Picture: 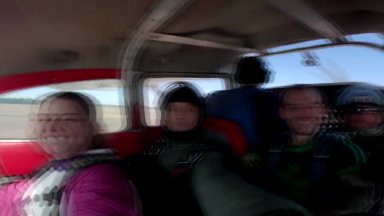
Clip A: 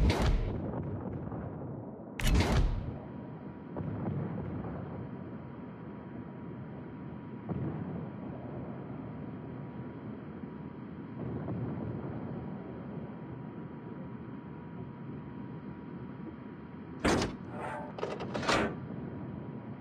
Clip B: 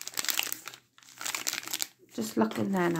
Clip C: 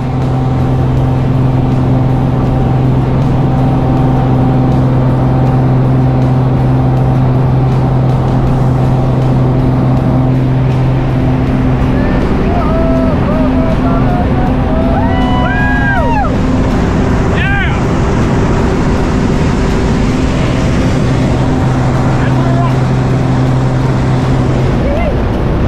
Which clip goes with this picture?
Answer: C